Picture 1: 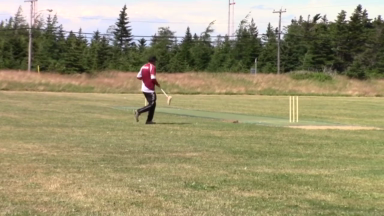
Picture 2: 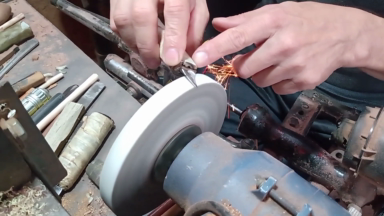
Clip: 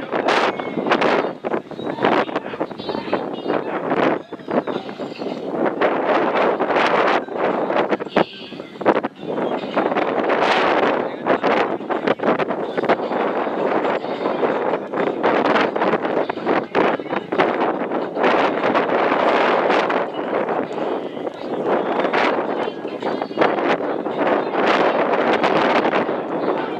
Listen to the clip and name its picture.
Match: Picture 1